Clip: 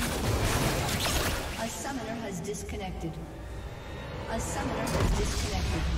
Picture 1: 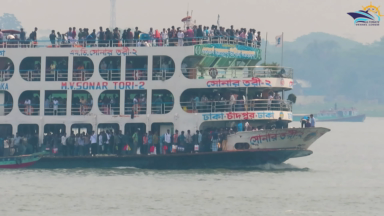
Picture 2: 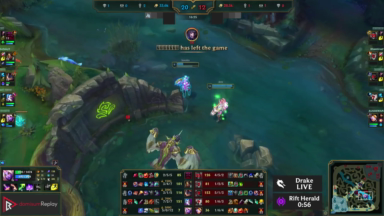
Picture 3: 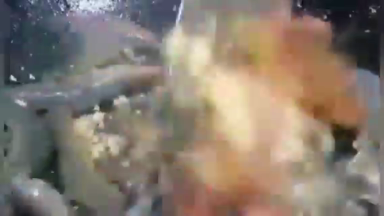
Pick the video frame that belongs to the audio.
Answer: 2